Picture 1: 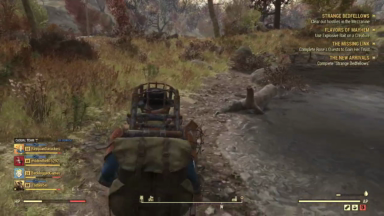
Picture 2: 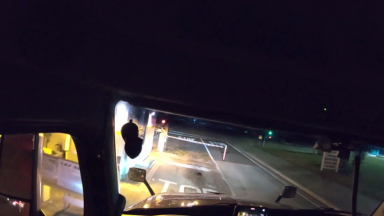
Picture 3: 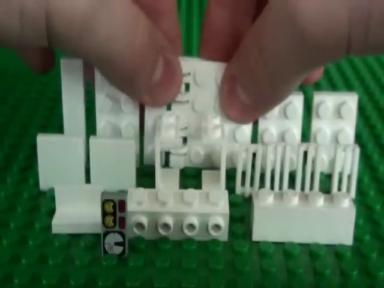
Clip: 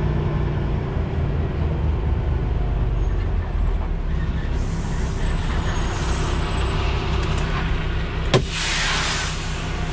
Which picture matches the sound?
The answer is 2